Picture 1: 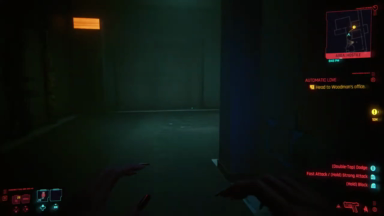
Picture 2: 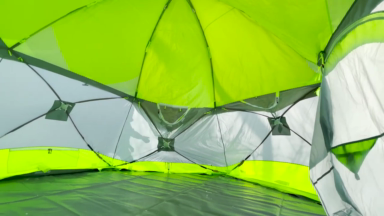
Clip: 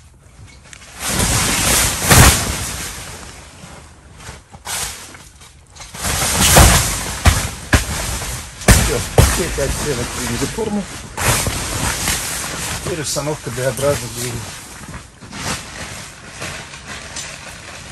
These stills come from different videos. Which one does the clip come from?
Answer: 2